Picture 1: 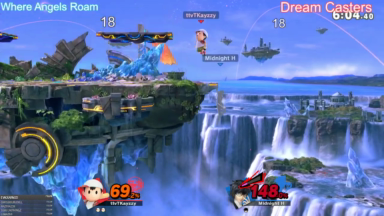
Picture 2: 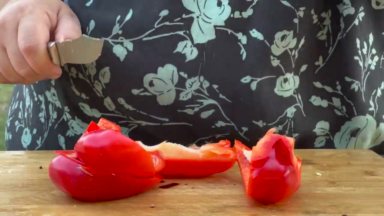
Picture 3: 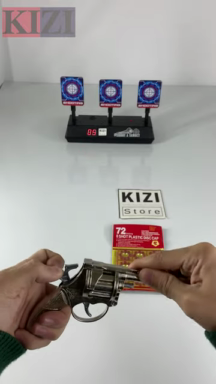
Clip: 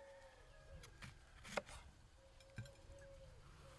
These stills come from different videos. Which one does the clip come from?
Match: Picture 2